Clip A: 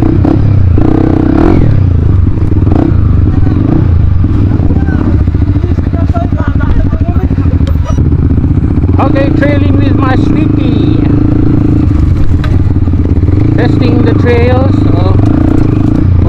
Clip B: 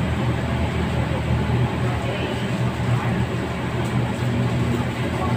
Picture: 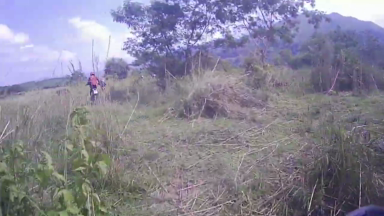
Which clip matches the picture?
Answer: A